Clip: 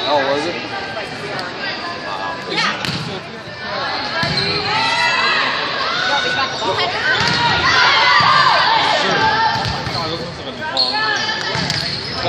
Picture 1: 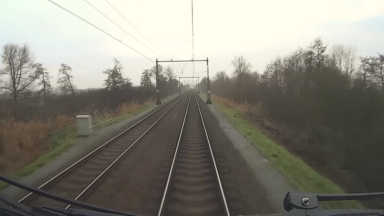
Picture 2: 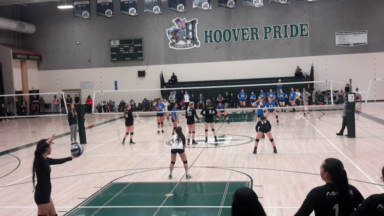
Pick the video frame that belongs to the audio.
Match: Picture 2